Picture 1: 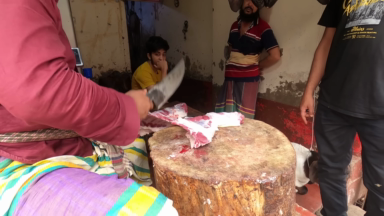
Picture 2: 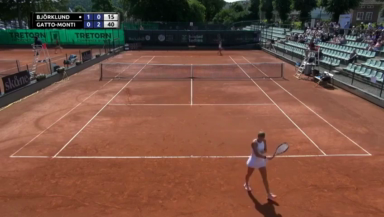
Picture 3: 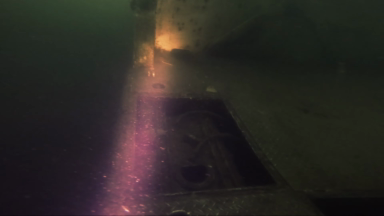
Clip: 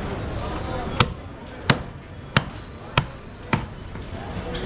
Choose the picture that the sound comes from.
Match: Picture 1